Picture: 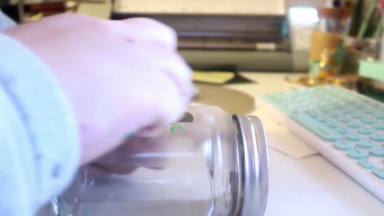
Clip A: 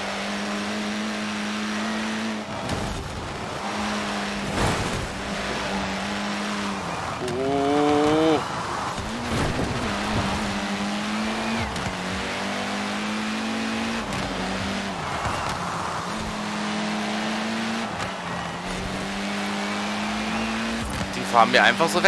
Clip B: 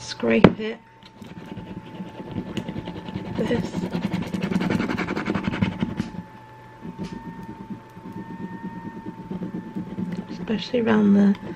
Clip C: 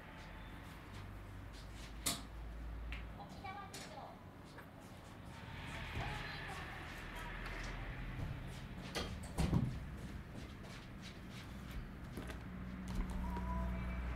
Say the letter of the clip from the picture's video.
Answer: B